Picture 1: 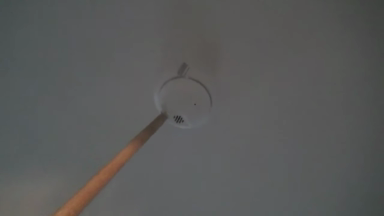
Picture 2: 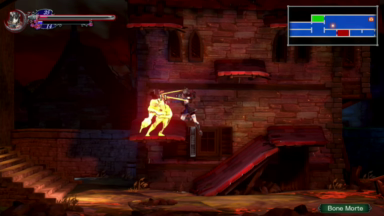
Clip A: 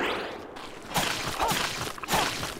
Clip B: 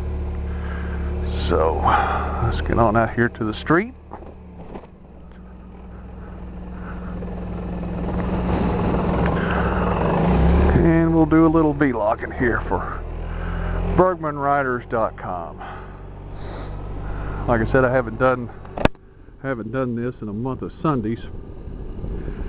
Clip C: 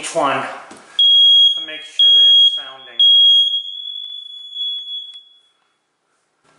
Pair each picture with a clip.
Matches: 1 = C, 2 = A